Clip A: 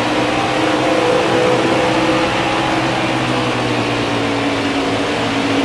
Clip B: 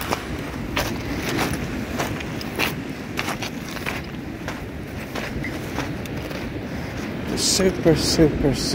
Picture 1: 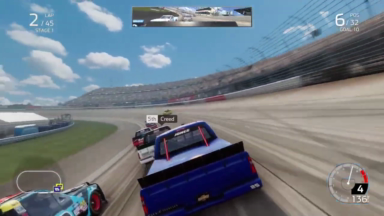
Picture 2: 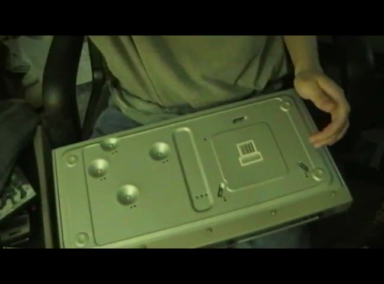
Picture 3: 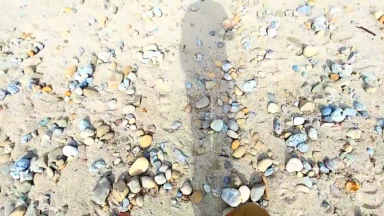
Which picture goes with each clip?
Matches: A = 1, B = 3